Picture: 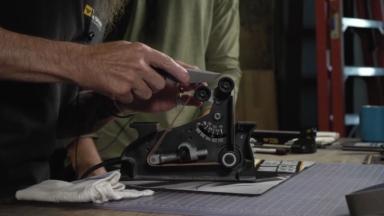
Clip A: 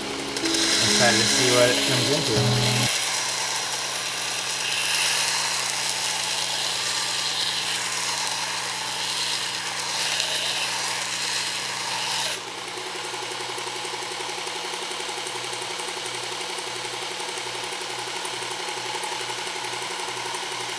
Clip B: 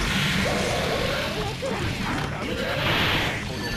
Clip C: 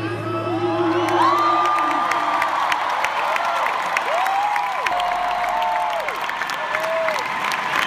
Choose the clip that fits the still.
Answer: A